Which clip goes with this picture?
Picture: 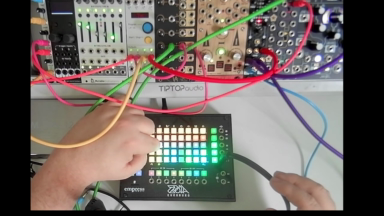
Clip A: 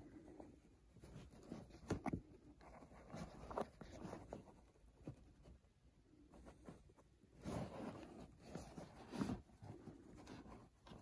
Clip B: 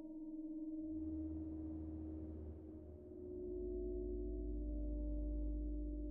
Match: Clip B